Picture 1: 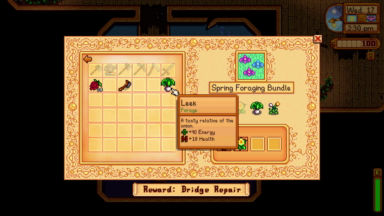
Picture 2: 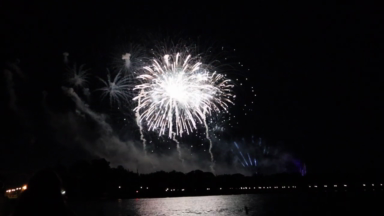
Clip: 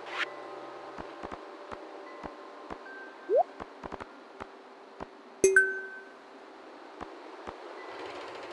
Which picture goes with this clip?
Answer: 1